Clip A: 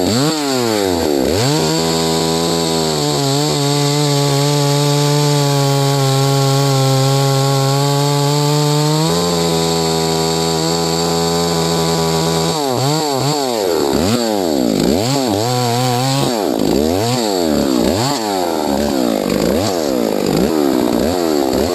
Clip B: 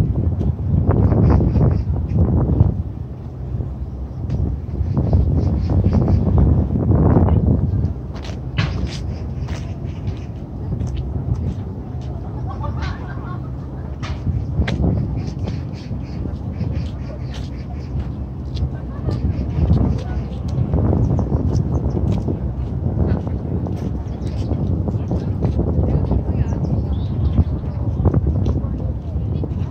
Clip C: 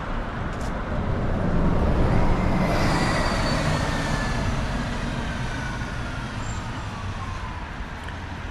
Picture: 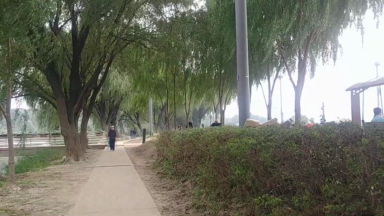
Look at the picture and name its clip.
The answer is B